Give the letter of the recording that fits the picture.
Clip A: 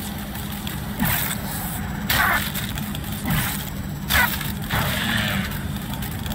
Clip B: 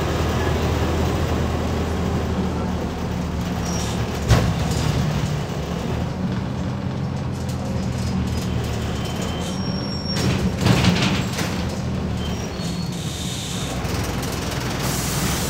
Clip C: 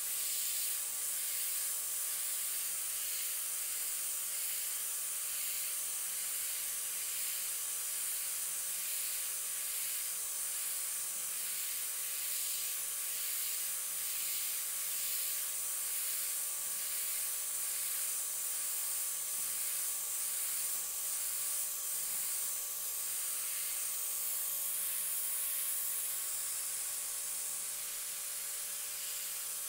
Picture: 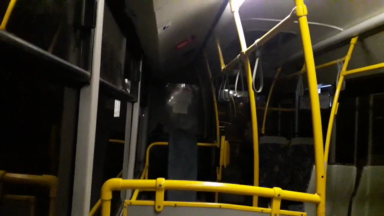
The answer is B